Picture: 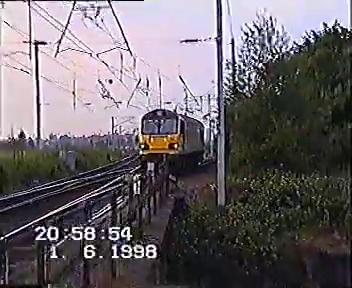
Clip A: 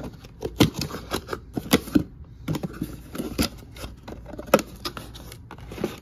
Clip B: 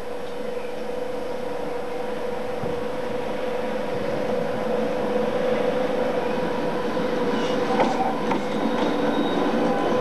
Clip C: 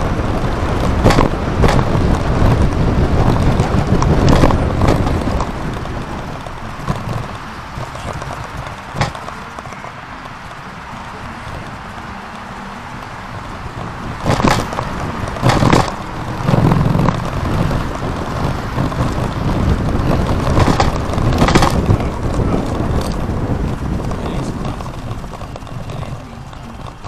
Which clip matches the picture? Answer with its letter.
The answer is B